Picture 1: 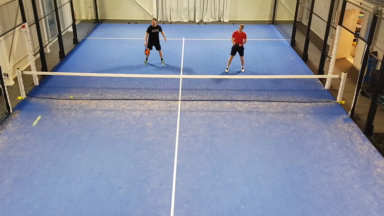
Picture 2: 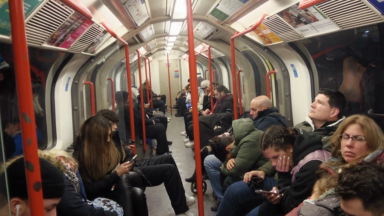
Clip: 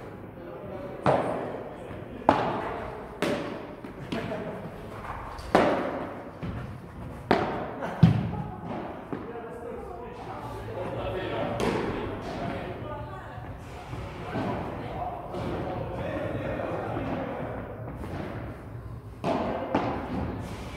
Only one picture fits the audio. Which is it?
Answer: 1